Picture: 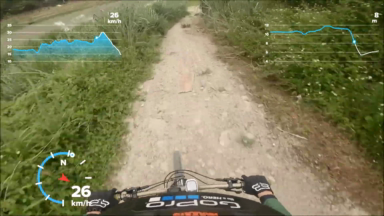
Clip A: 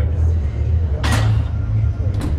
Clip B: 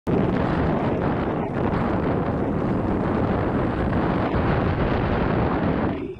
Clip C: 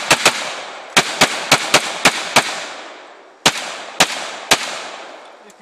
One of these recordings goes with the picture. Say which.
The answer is B